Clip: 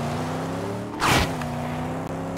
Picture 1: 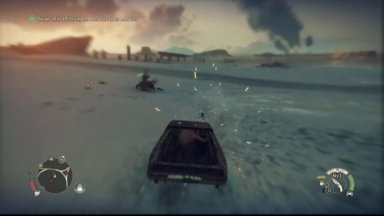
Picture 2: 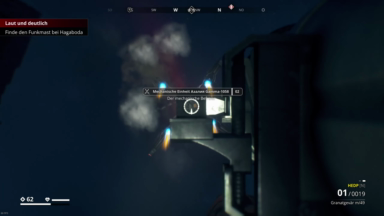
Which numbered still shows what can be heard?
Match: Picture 1